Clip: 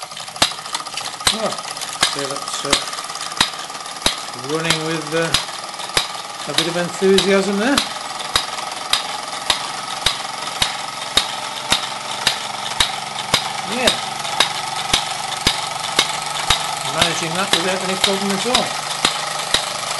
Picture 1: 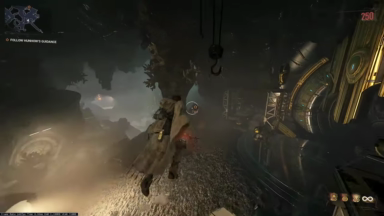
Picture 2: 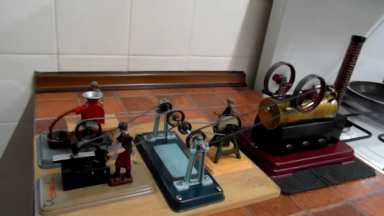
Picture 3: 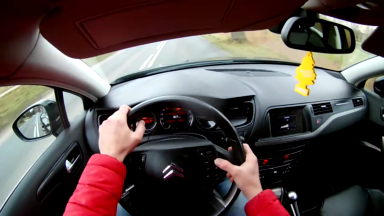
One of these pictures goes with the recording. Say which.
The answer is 2